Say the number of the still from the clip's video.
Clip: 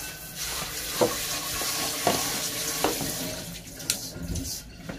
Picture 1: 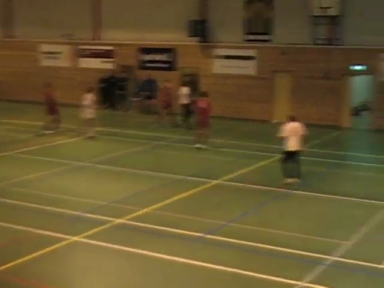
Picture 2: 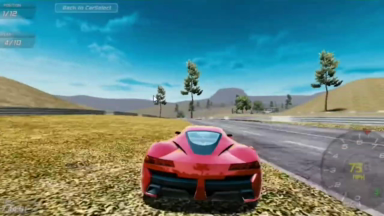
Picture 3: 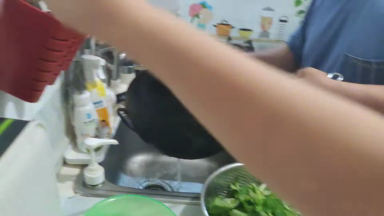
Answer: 3